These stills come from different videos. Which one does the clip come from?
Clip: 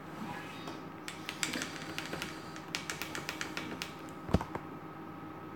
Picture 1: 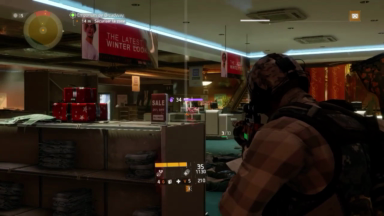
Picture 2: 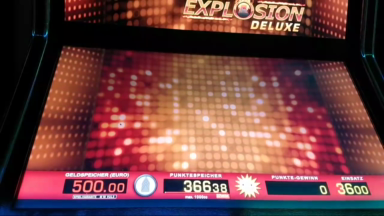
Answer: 2